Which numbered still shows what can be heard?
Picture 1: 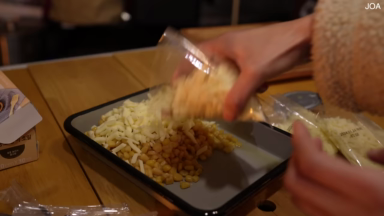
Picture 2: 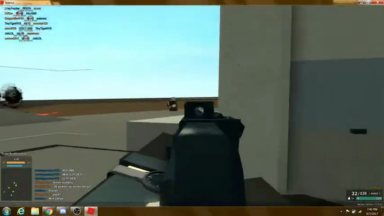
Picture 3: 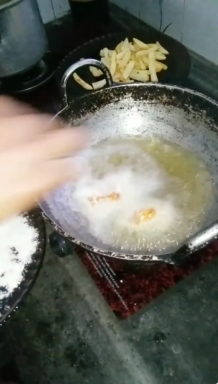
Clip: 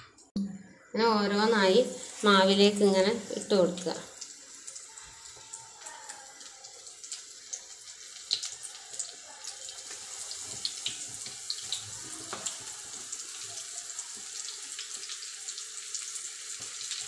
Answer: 3